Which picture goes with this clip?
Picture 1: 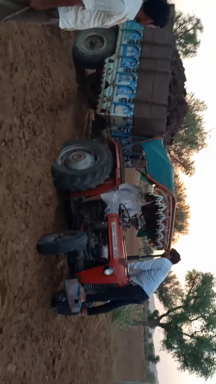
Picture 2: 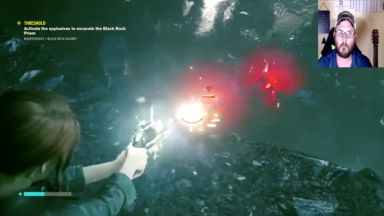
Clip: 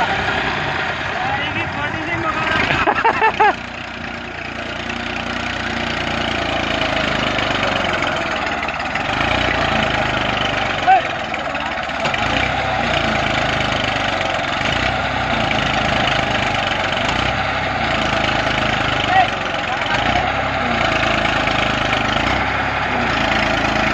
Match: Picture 1